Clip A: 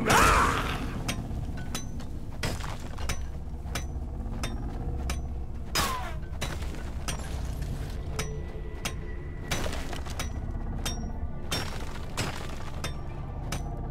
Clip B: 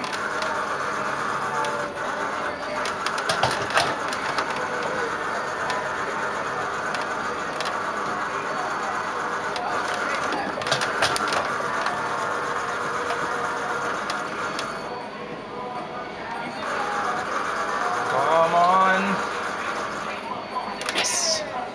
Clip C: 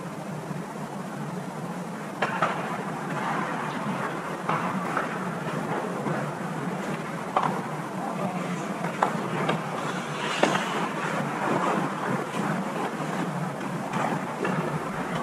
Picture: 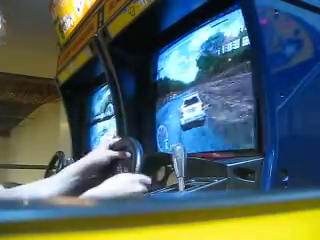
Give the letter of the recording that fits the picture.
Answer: B